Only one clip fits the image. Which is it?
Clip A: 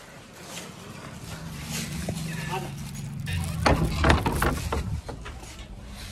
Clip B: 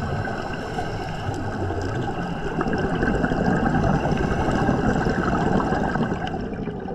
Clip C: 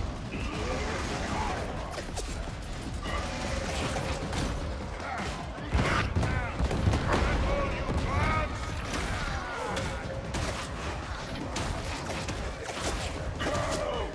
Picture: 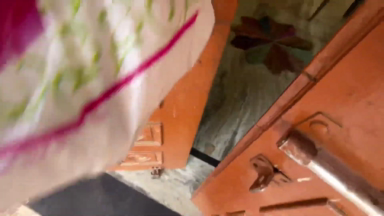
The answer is A